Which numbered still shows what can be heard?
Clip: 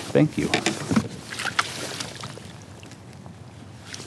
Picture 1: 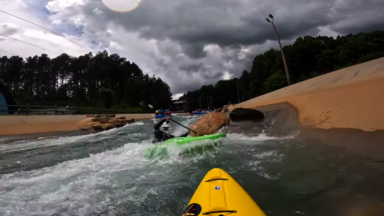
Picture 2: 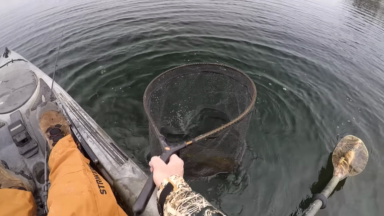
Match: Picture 2